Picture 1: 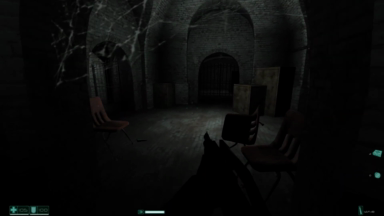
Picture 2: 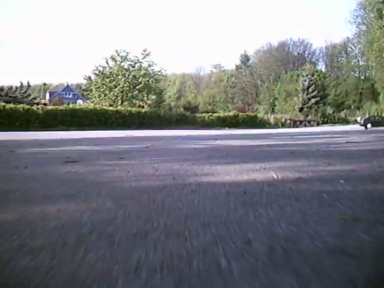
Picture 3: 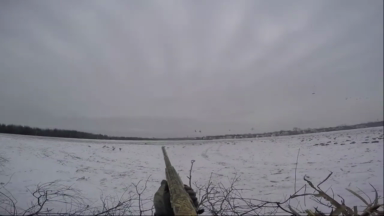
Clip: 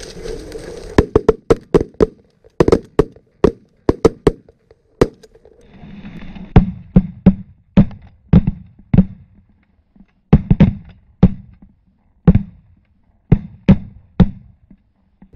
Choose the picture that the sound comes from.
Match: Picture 3